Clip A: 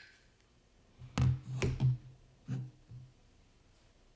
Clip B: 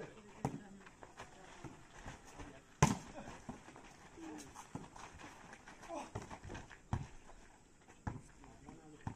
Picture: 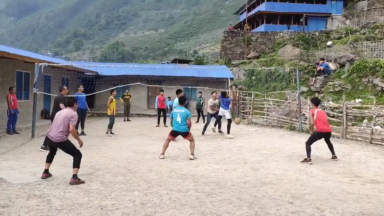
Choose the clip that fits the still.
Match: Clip B